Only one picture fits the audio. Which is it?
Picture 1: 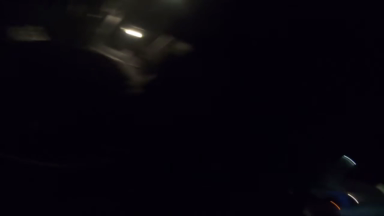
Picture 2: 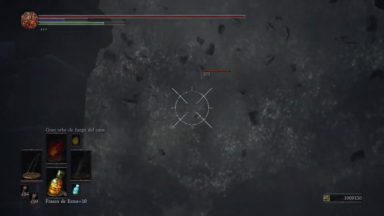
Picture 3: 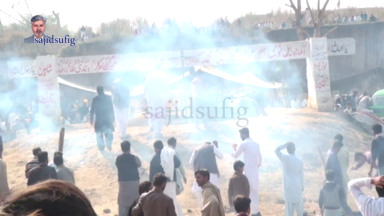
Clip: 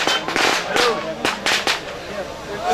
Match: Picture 3